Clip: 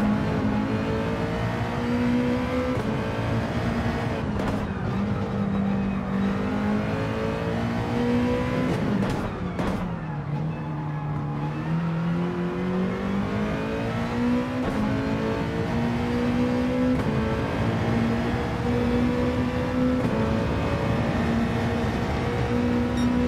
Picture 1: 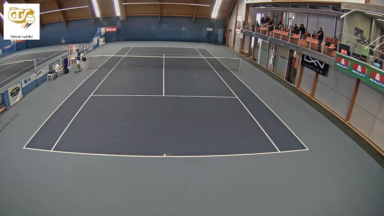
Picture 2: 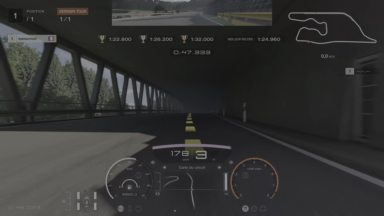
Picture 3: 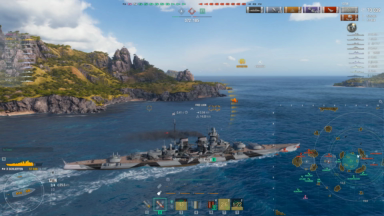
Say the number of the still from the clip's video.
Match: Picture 2